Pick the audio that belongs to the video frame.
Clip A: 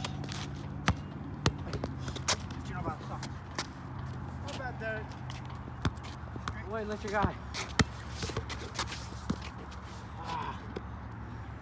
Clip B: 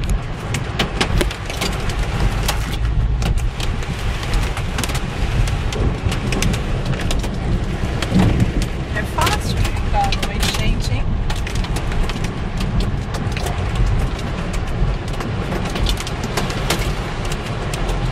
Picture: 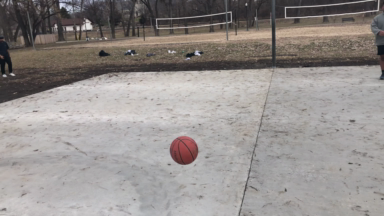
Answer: A